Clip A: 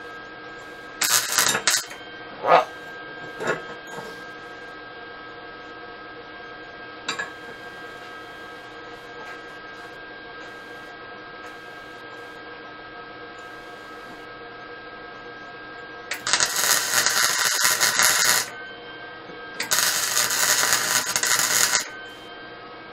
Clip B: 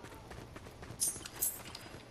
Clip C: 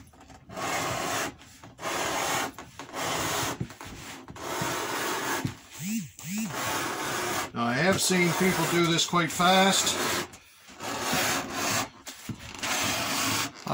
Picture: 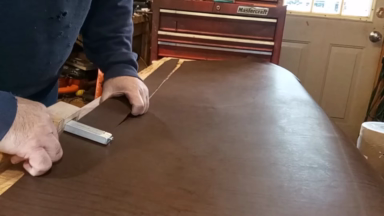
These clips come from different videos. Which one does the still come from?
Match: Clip C